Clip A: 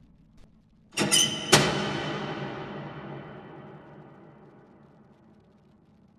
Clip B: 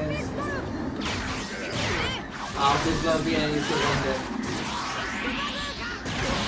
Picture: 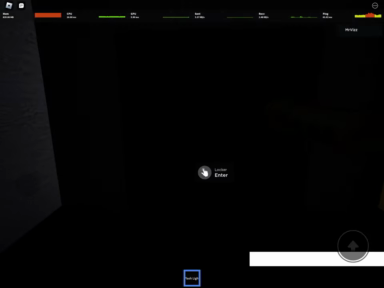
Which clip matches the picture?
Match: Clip A